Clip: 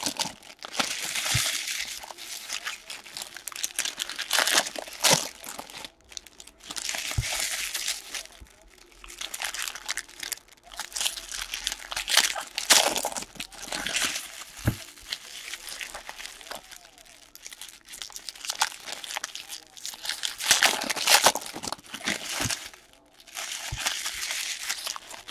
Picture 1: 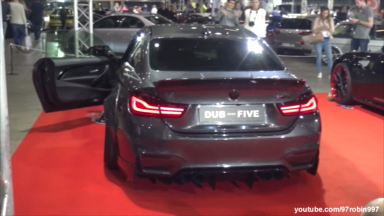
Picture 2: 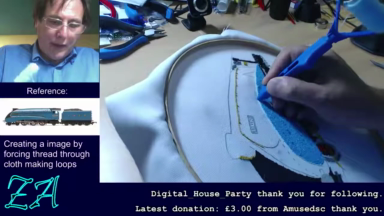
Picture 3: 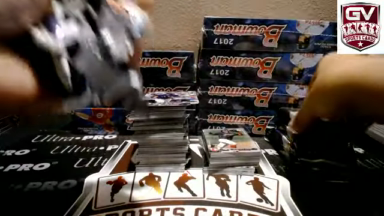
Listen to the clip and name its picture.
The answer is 3